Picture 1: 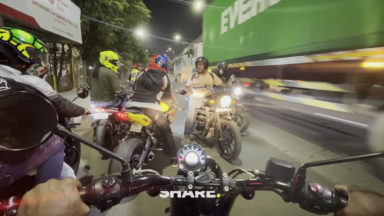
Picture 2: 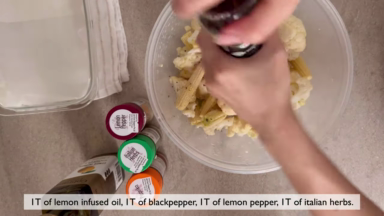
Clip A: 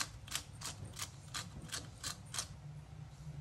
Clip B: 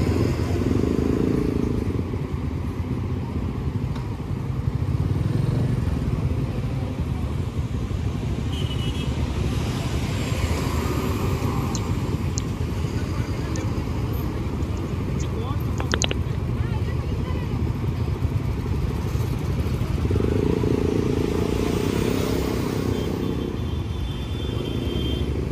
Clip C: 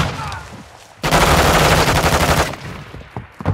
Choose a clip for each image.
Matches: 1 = B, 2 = A